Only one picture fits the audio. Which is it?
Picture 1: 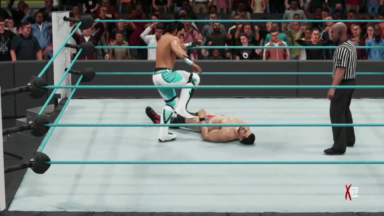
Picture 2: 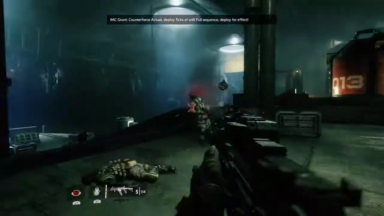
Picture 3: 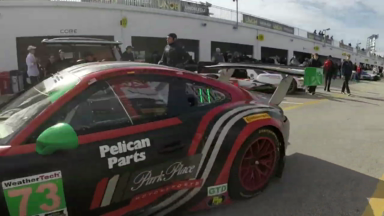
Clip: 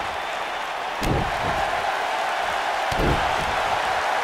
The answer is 1